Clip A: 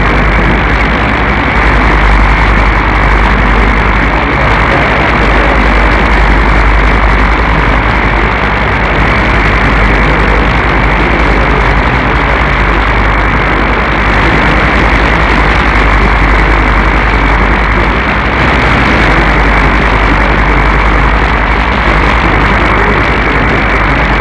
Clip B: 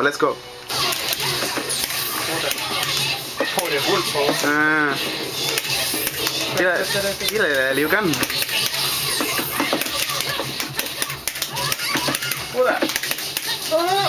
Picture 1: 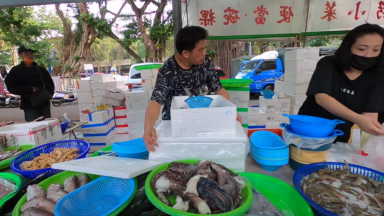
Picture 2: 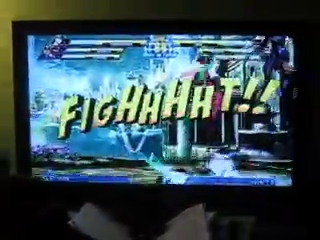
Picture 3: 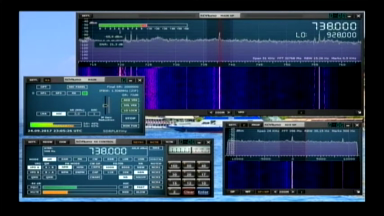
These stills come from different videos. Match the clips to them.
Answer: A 3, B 2